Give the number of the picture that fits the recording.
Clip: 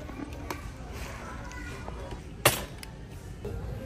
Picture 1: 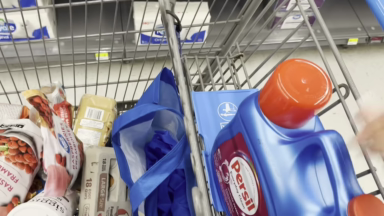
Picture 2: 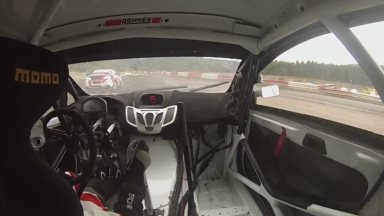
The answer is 1